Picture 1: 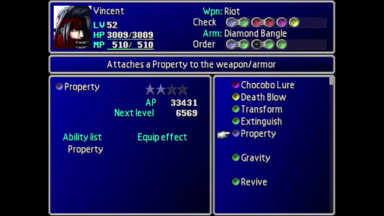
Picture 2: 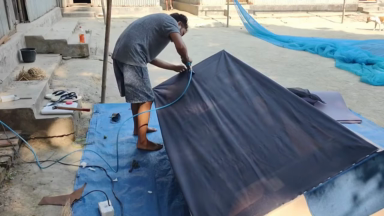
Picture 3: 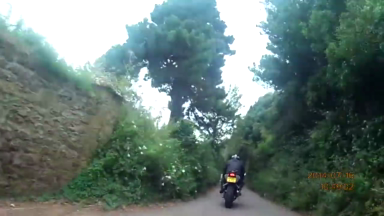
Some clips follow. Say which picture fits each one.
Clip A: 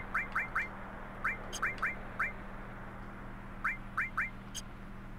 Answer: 1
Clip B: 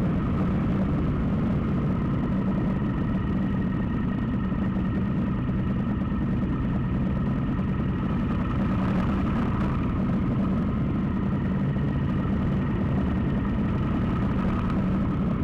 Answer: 3